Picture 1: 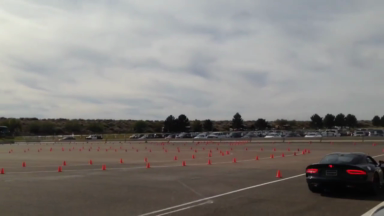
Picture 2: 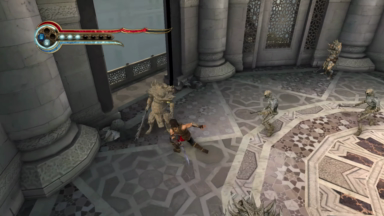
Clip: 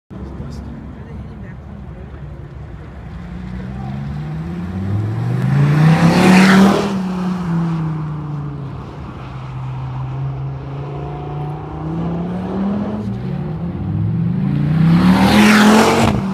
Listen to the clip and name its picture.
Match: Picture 1